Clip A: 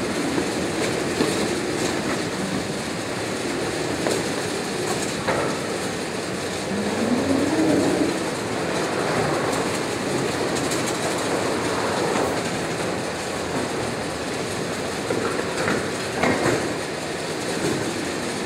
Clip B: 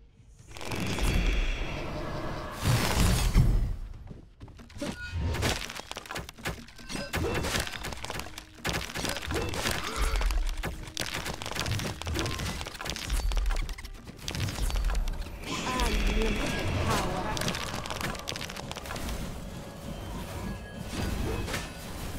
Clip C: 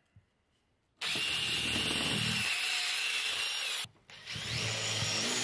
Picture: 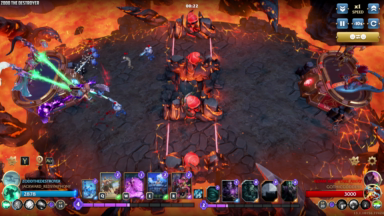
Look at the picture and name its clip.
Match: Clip B